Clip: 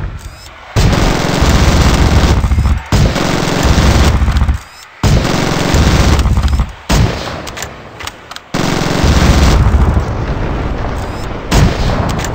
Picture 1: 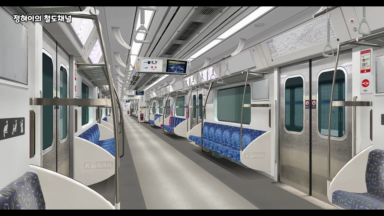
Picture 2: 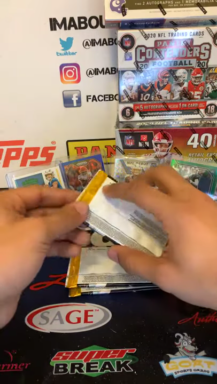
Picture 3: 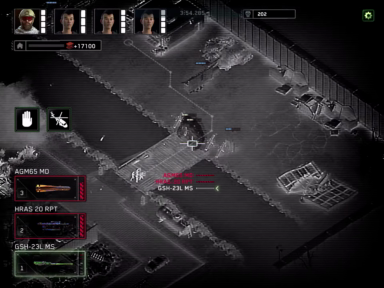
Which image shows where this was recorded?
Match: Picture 3